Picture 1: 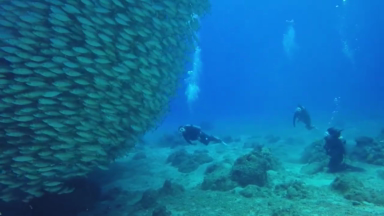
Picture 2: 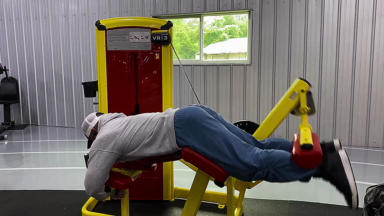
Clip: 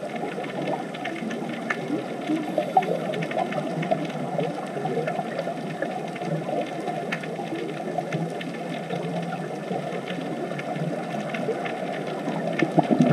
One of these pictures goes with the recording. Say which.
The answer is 1